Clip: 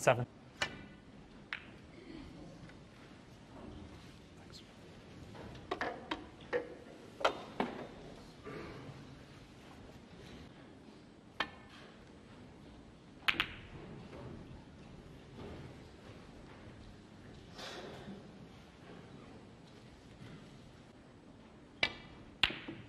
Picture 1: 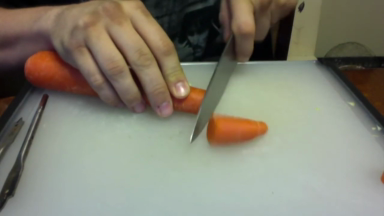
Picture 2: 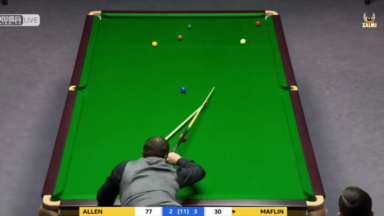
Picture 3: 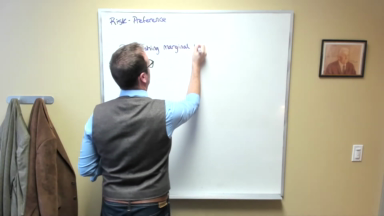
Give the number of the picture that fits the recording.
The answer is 2